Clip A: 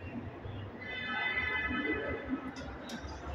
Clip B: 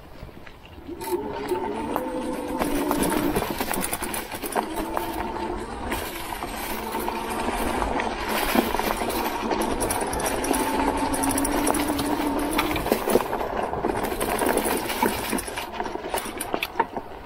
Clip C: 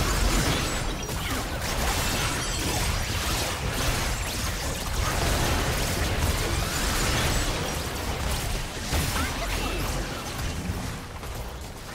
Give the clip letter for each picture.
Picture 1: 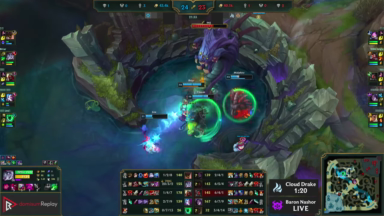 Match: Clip C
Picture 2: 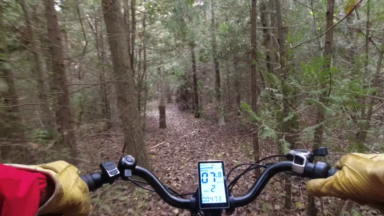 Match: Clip B